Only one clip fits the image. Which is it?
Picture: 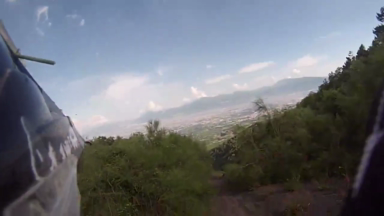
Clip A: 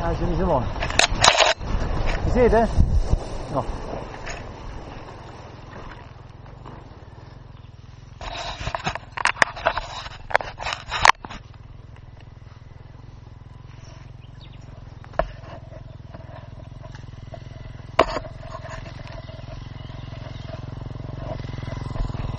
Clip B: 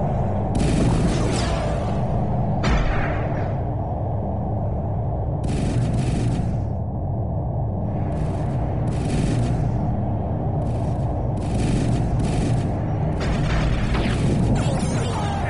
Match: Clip A